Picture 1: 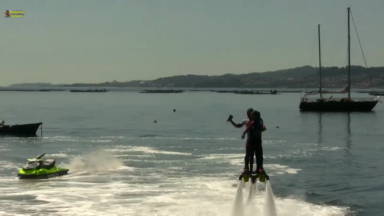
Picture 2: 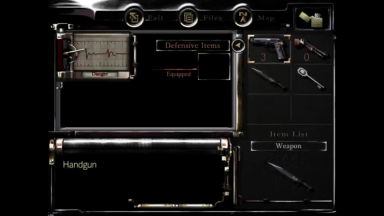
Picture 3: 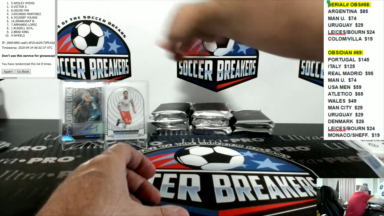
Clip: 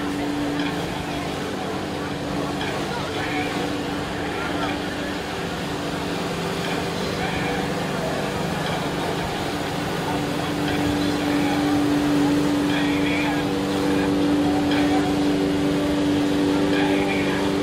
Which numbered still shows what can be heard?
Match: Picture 1